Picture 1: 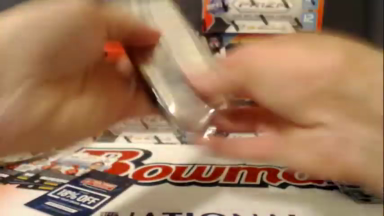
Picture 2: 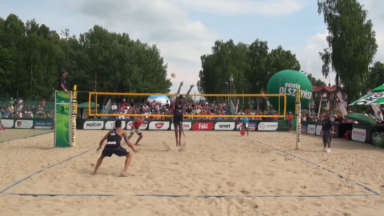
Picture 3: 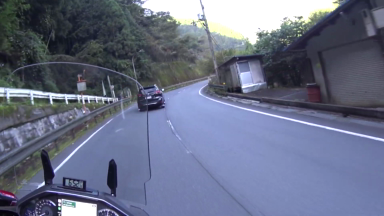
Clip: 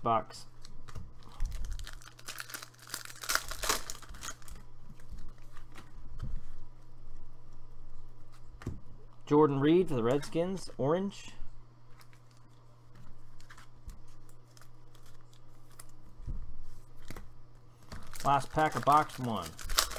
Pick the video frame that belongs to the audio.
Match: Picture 1